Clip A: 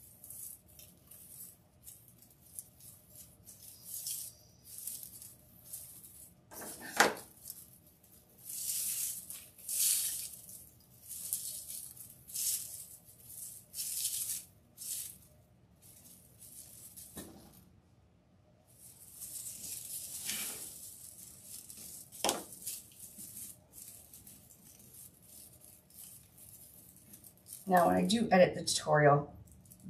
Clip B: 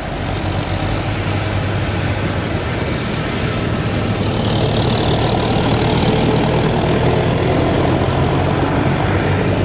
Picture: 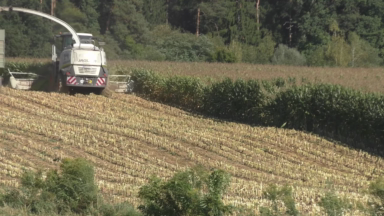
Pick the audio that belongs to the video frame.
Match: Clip B